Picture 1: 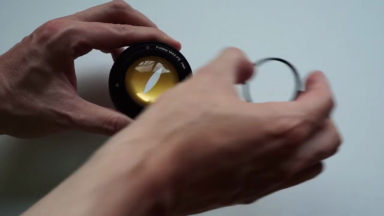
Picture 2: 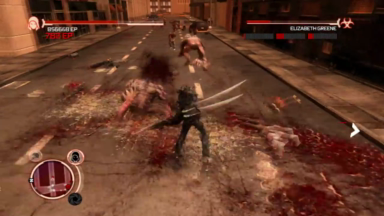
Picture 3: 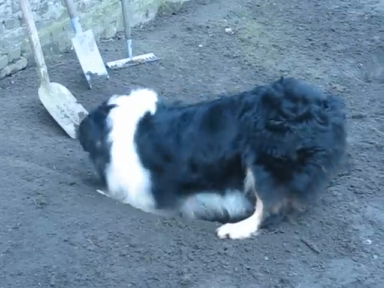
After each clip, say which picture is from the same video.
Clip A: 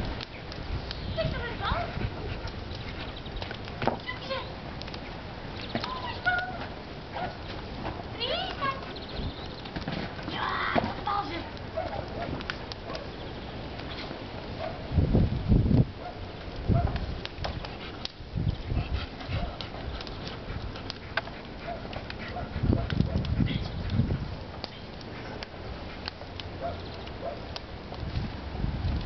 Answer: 3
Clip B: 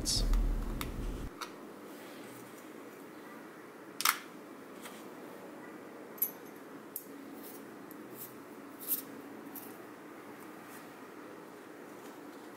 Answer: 1